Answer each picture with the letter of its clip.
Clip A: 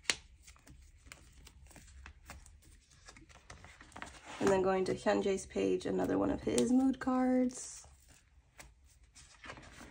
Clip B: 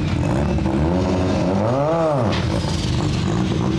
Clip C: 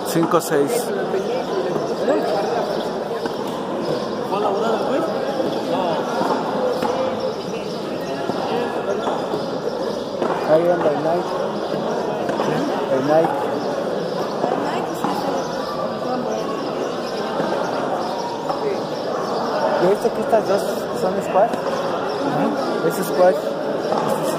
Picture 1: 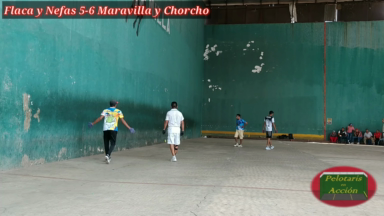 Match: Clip C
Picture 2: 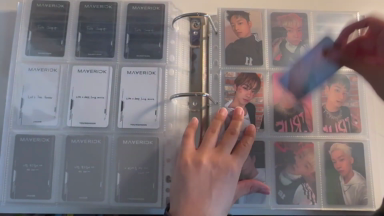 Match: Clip A